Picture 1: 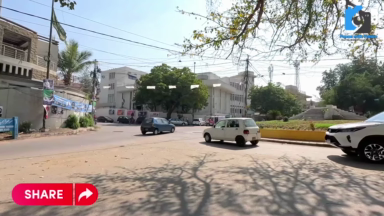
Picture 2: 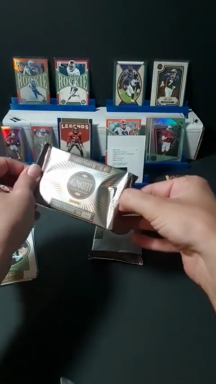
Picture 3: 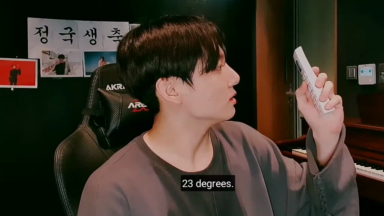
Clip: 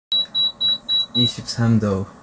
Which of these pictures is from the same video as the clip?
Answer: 3